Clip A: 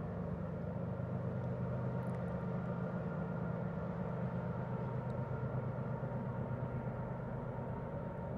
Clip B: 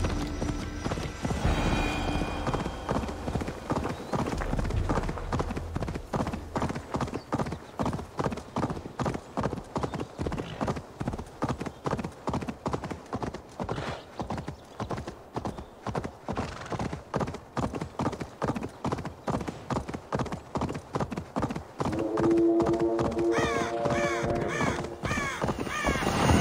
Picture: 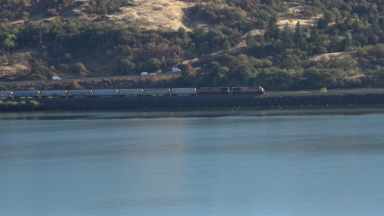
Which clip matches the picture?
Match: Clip A